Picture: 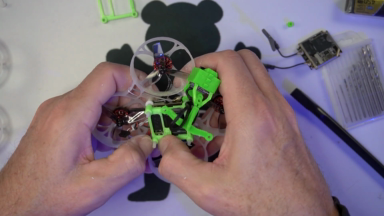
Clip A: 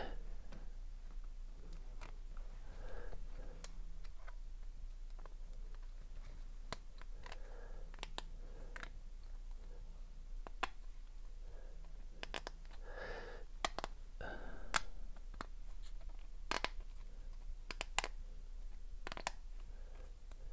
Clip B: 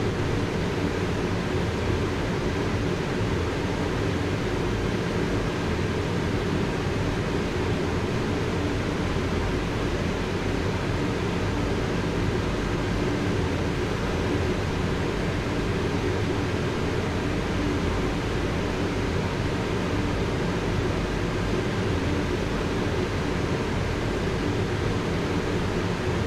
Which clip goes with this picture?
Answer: A